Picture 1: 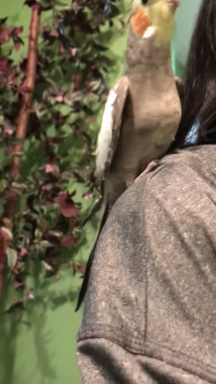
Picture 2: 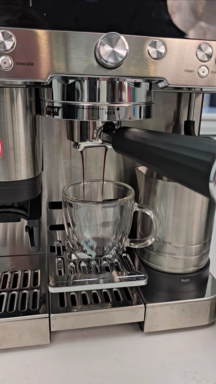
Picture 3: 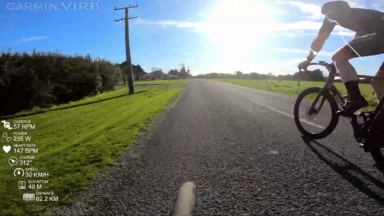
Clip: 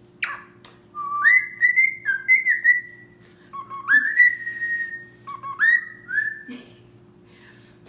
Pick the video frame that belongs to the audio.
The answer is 1